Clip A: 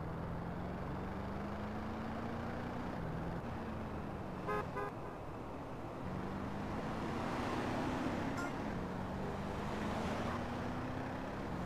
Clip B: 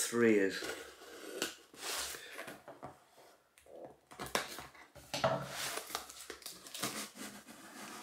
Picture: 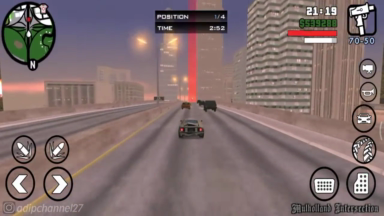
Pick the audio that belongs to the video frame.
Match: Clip A